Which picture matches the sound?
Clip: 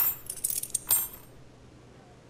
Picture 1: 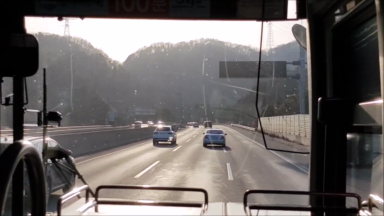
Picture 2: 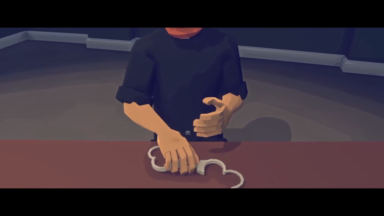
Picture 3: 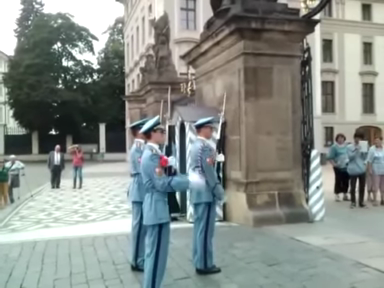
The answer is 2